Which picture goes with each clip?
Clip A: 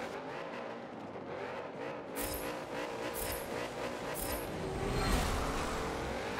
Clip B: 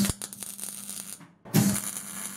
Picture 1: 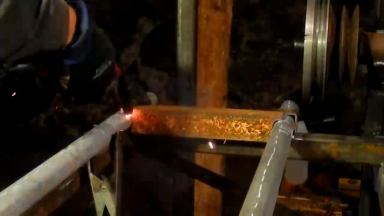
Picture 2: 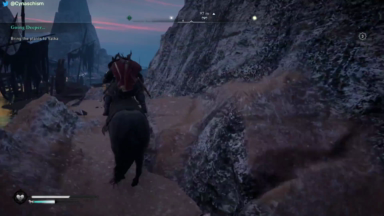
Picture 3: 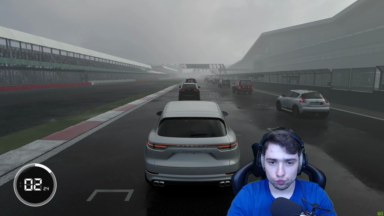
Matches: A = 3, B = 1